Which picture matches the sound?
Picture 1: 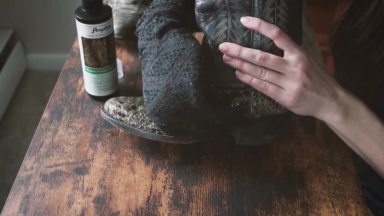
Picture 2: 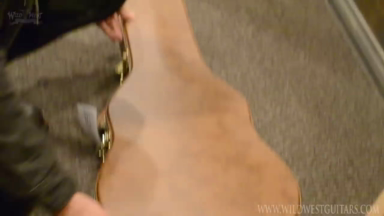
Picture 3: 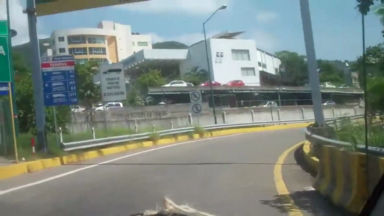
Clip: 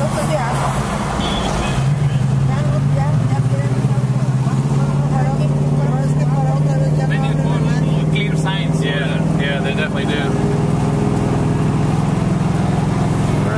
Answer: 3